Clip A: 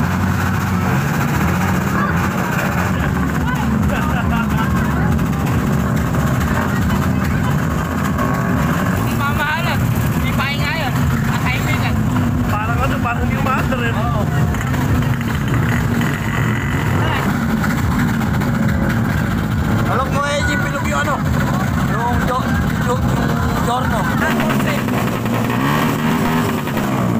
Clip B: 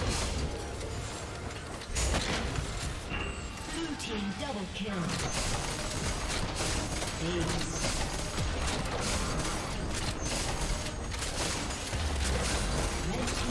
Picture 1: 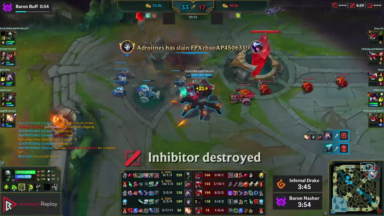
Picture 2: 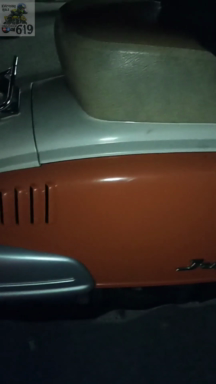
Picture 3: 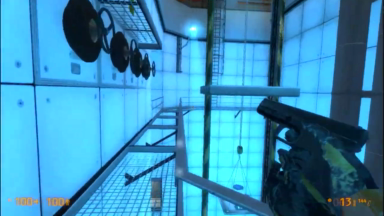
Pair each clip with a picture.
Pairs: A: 2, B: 1